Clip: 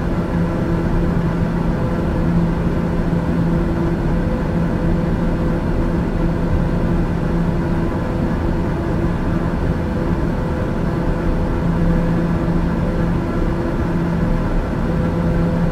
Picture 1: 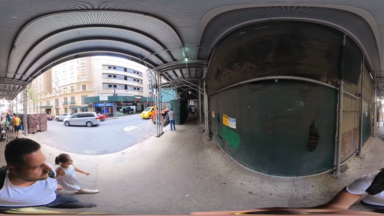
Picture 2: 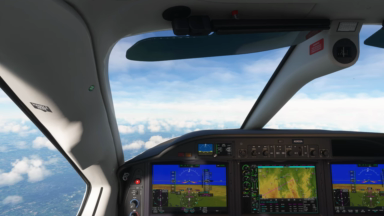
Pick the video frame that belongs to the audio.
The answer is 2